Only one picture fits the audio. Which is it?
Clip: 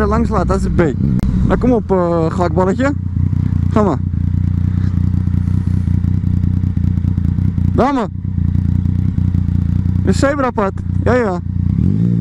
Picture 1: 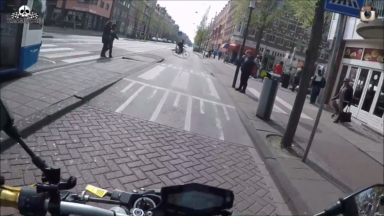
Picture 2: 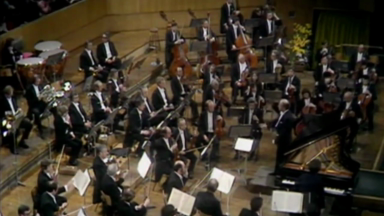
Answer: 1